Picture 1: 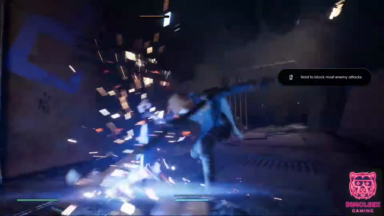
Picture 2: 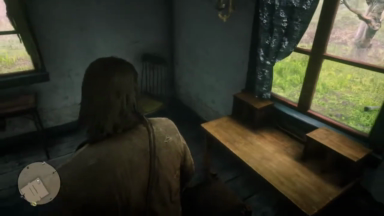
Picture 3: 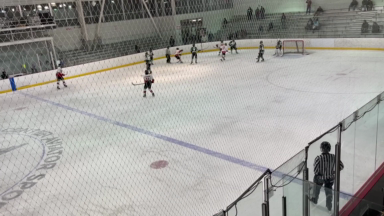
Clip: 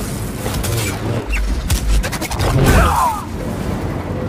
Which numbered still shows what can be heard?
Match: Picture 1